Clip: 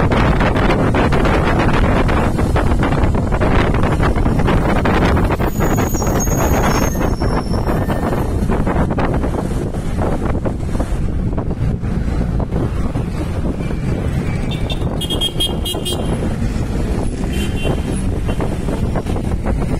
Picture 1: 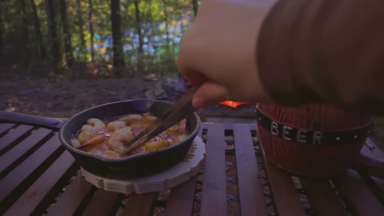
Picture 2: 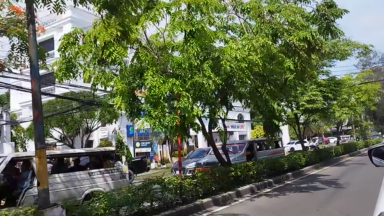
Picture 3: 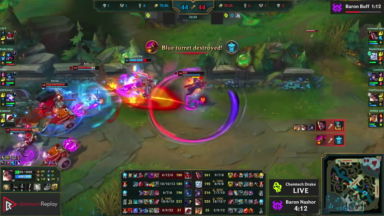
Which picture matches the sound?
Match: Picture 2